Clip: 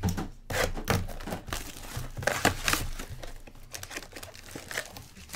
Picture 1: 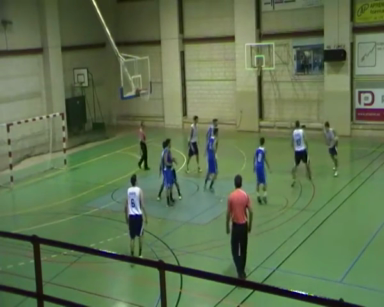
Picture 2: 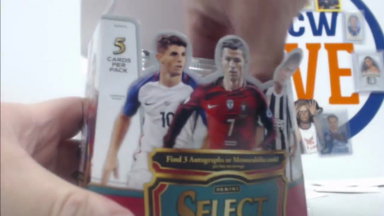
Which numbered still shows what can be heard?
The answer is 2